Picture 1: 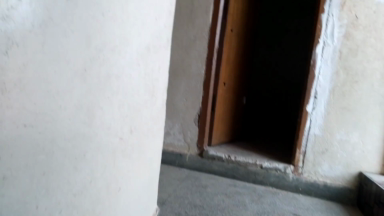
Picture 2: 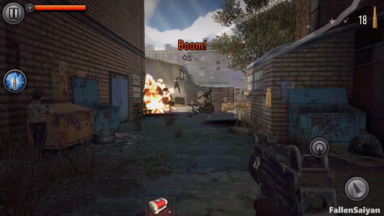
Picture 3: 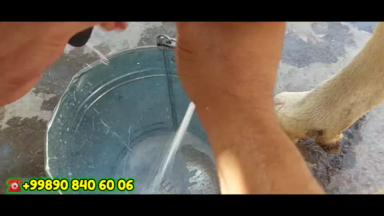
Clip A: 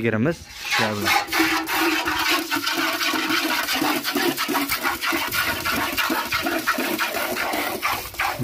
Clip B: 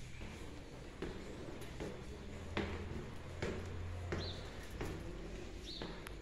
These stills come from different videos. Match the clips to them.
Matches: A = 3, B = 1